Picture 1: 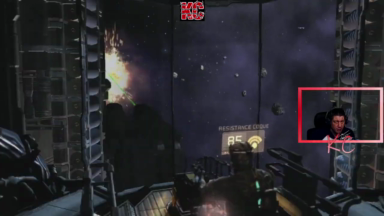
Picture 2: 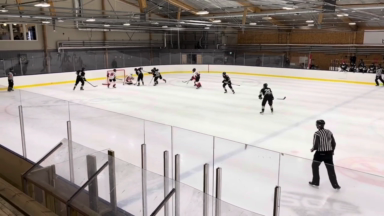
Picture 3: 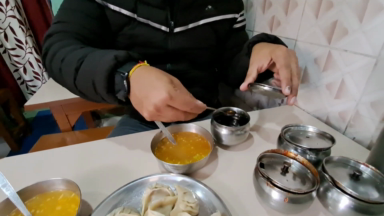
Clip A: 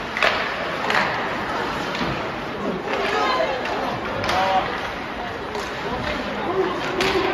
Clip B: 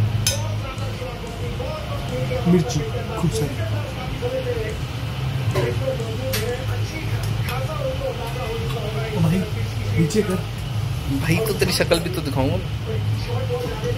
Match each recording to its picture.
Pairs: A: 2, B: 3